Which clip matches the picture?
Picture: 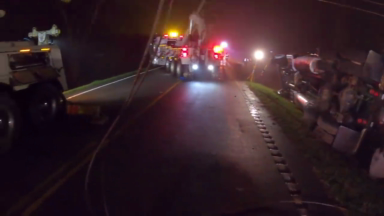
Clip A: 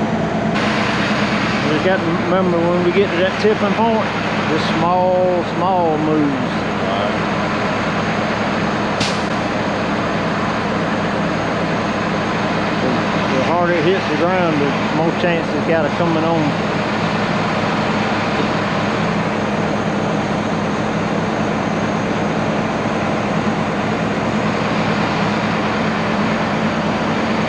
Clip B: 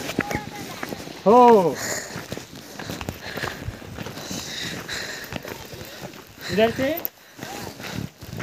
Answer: A